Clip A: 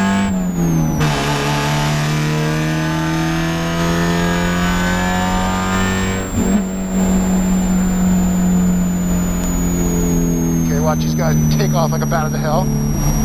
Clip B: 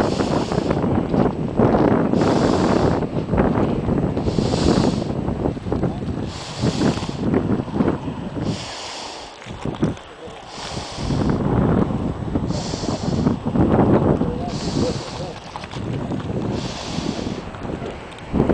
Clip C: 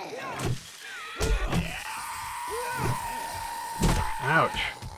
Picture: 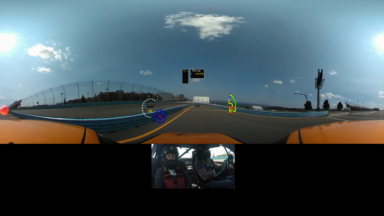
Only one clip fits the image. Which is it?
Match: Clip A